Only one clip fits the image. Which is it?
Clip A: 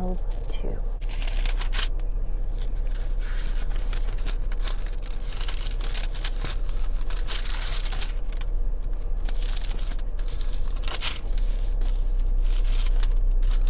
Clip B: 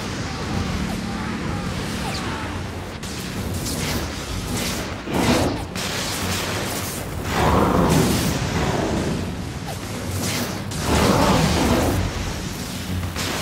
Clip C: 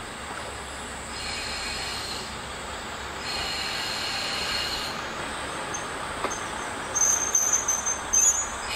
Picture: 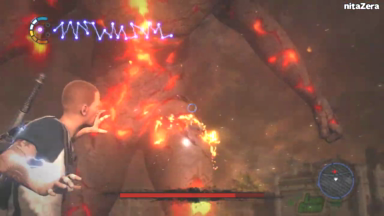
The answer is B